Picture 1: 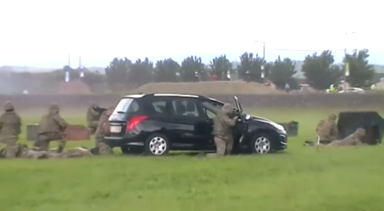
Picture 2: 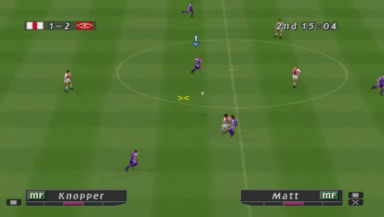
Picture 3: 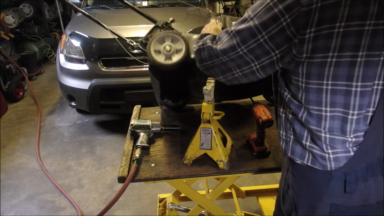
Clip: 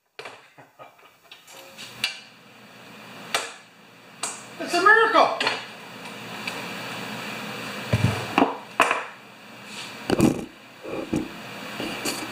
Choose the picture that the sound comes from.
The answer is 3